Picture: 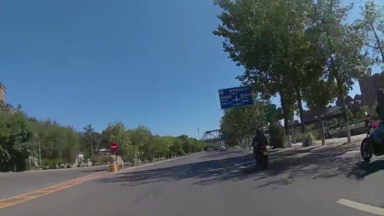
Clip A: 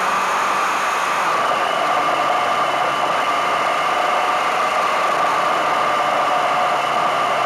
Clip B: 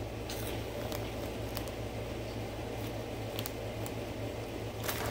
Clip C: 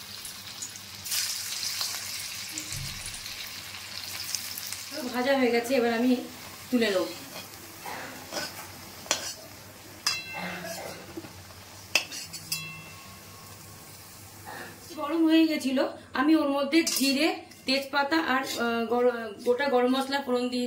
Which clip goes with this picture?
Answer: A